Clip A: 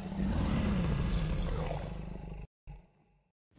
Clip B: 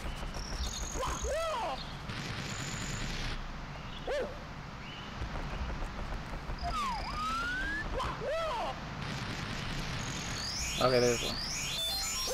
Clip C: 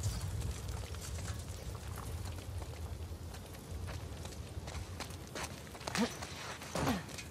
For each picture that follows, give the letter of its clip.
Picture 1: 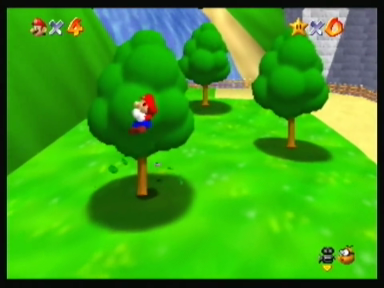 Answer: B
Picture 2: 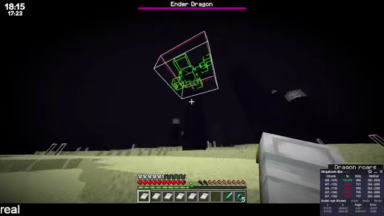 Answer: A